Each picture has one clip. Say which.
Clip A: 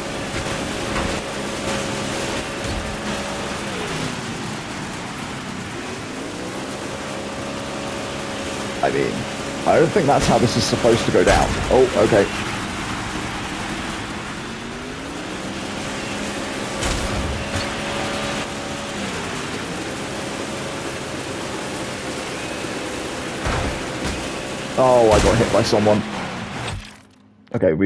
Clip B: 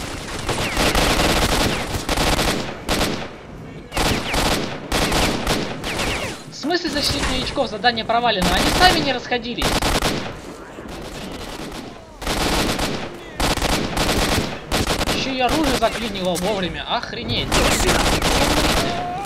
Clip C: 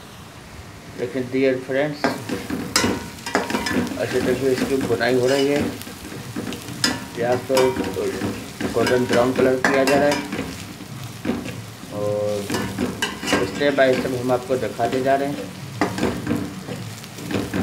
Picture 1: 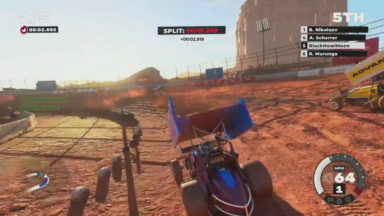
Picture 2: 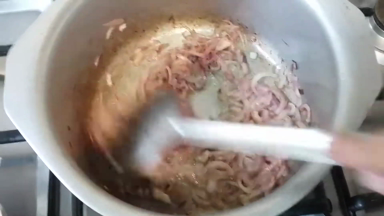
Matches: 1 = A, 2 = C